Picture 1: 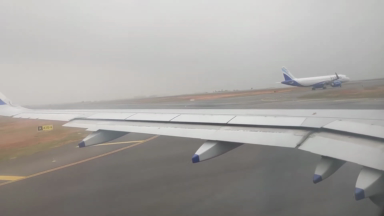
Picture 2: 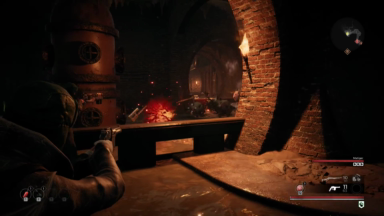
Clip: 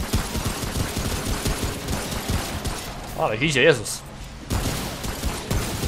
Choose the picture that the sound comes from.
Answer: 2